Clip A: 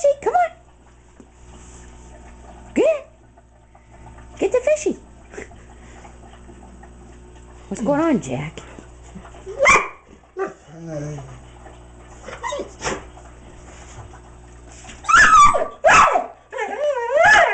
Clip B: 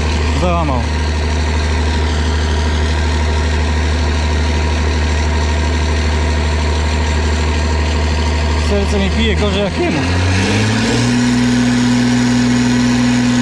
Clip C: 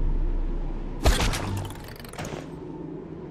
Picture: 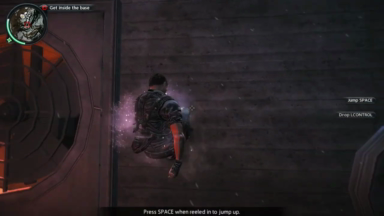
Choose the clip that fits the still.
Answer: C